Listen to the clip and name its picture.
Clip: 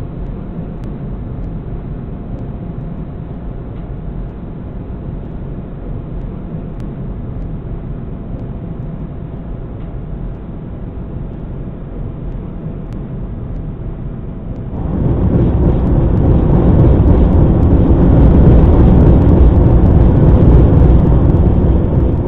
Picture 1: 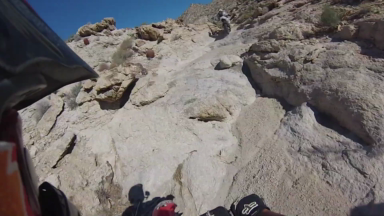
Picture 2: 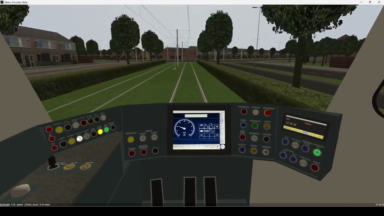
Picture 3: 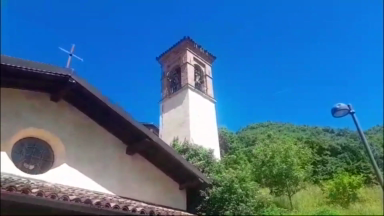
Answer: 2